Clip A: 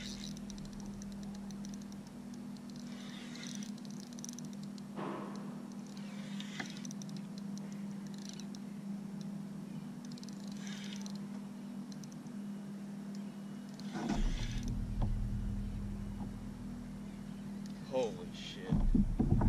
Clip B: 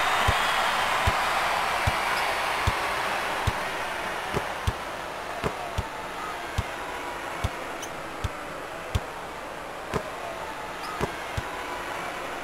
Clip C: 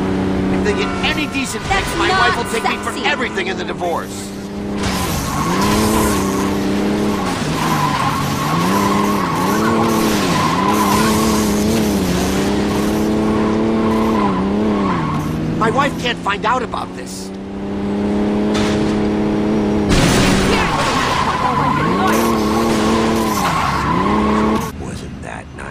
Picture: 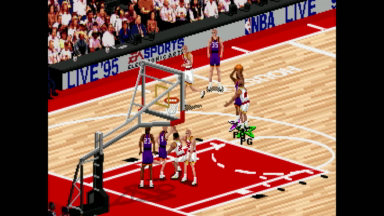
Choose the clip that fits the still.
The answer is B